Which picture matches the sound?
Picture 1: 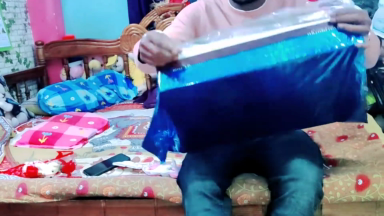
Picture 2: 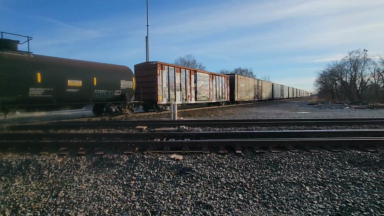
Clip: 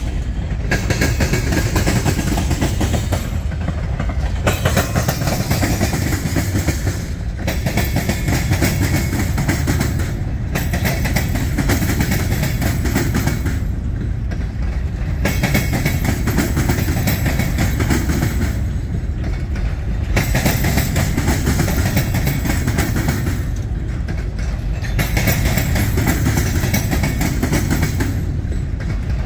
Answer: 2